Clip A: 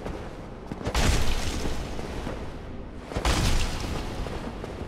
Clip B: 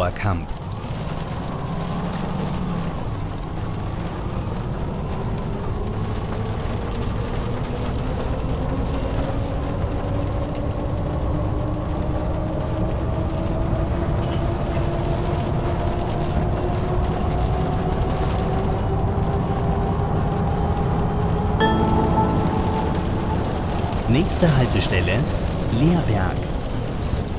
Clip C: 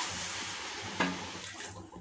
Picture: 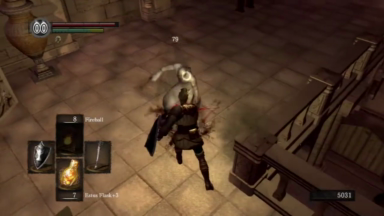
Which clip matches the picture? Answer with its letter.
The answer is A